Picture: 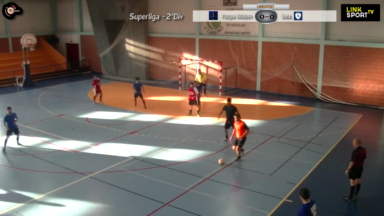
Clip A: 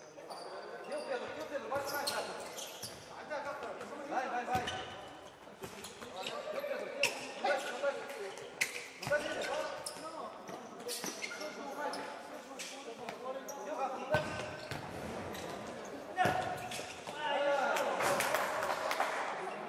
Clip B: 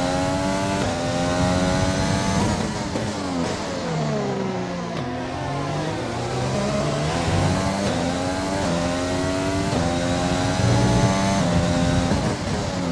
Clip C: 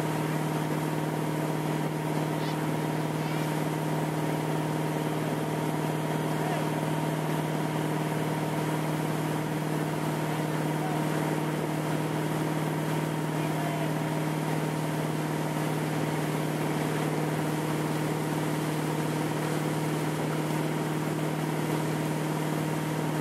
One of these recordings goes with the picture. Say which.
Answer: A